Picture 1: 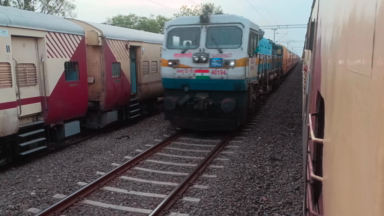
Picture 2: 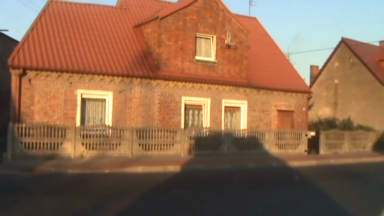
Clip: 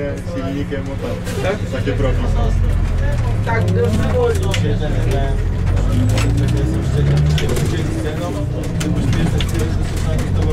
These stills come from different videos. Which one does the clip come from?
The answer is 2